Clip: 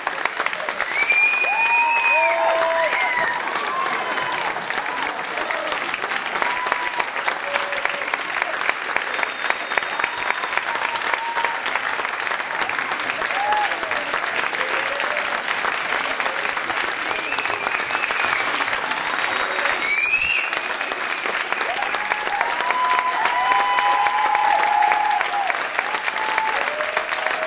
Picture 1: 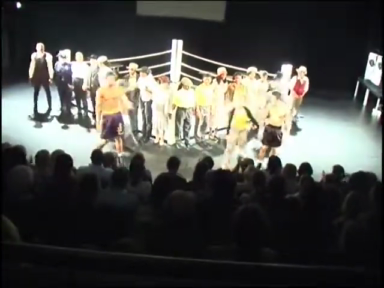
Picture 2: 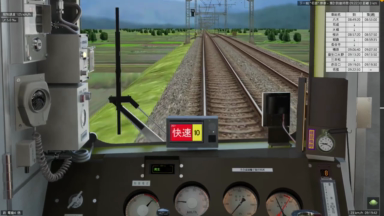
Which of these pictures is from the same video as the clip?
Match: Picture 1